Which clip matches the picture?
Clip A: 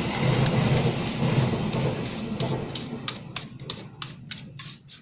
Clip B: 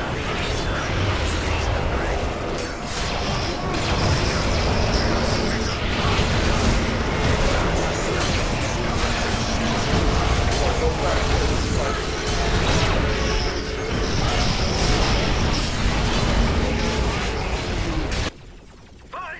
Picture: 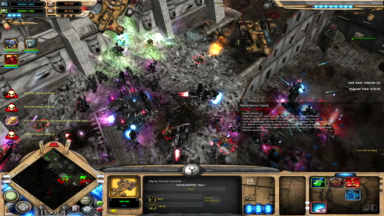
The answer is B